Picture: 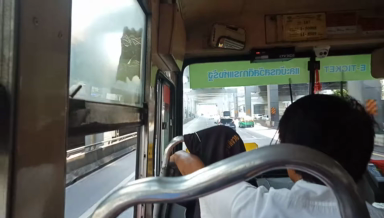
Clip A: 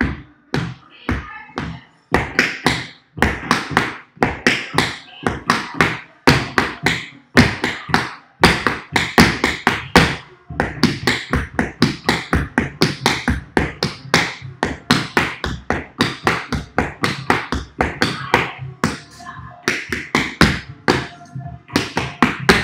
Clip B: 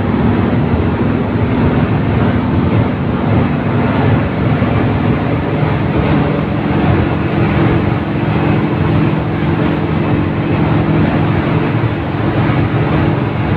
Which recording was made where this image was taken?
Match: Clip B